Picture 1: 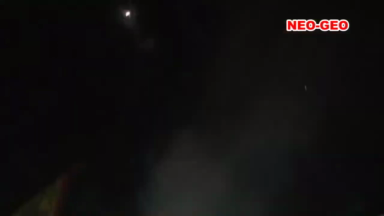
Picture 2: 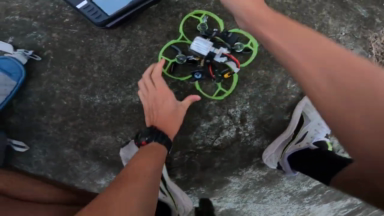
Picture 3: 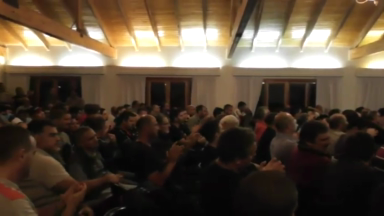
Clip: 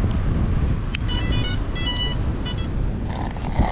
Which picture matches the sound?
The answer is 2